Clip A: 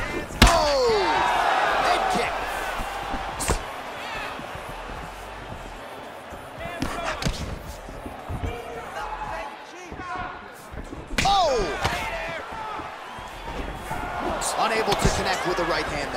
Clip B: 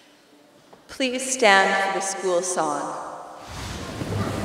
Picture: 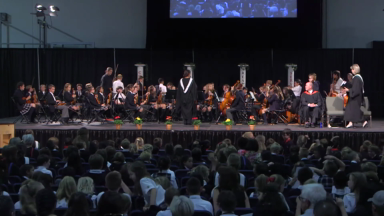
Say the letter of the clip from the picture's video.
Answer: B